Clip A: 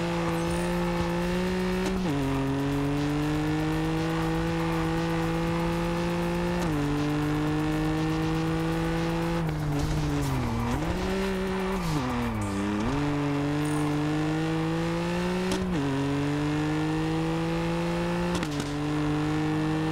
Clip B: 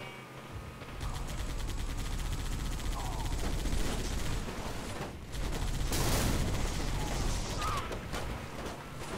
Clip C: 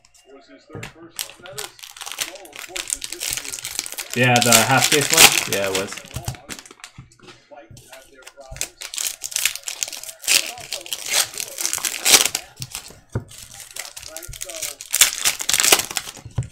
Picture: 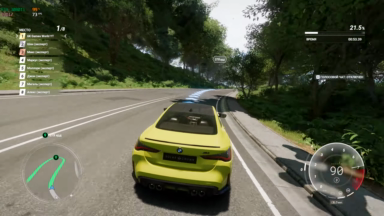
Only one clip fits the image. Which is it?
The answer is A